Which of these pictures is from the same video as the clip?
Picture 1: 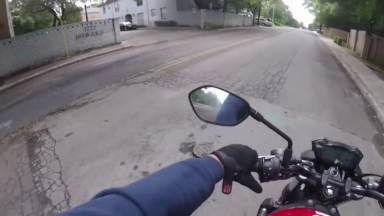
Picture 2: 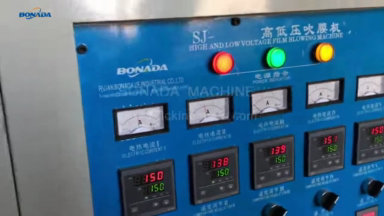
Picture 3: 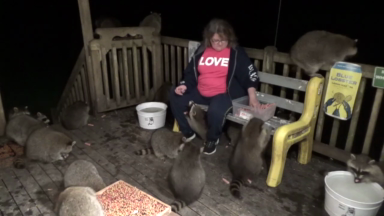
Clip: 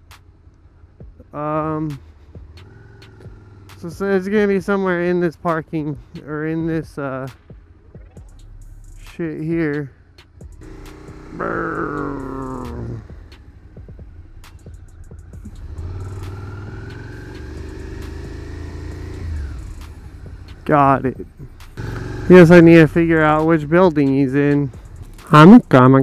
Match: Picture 1